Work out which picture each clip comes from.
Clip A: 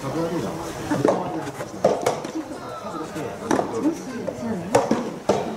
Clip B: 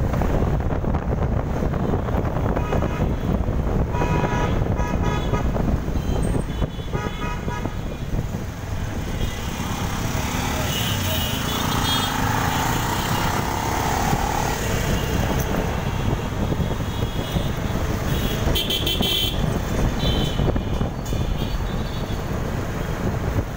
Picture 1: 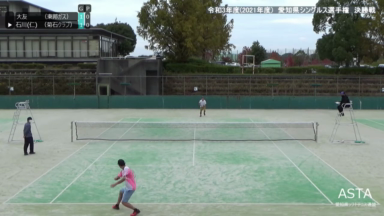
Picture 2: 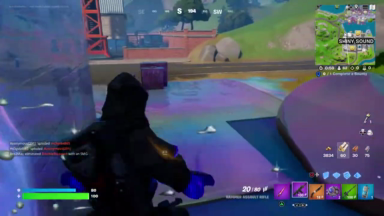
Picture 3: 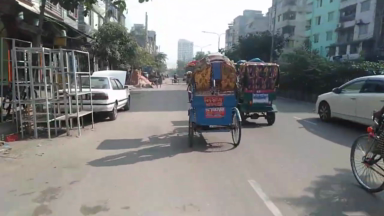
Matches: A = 1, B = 3